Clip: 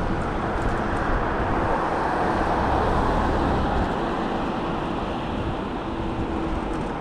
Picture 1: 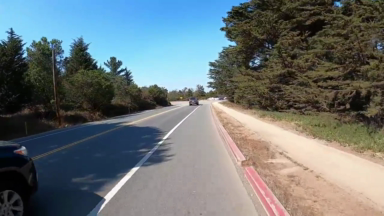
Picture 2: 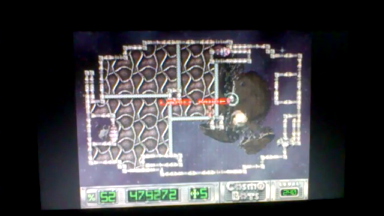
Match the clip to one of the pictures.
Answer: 1